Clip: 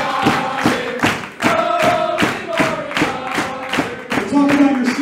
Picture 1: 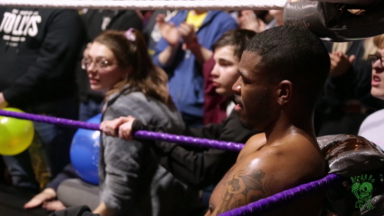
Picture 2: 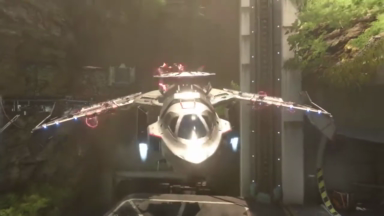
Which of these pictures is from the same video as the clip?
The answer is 1